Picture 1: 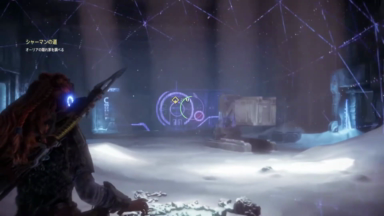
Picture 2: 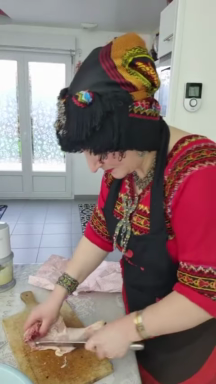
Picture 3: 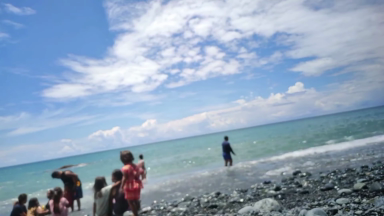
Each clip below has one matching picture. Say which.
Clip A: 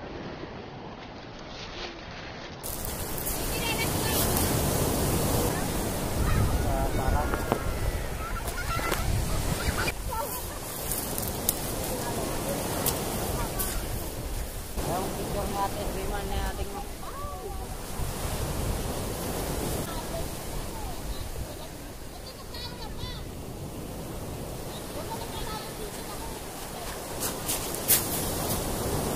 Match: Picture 3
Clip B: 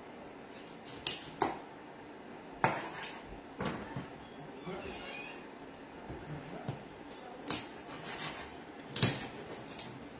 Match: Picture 2